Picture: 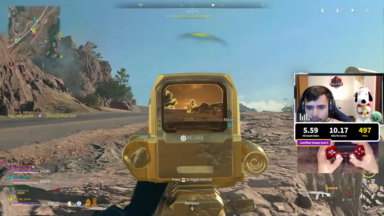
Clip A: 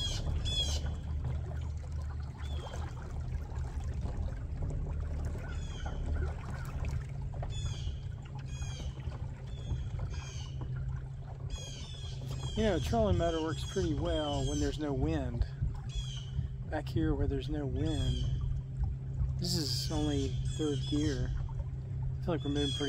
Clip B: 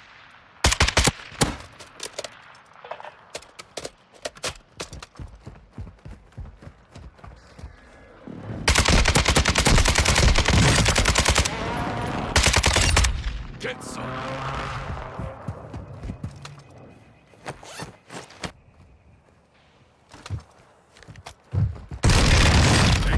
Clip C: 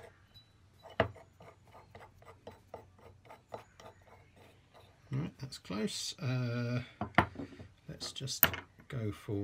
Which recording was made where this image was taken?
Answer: B